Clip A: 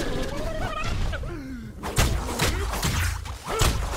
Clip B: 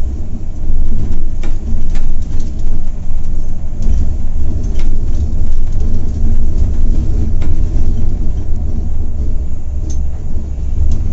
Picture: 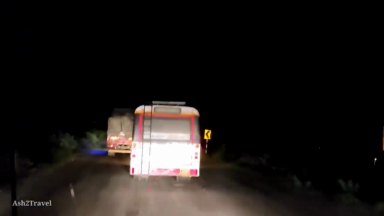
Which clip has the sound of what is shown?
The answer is B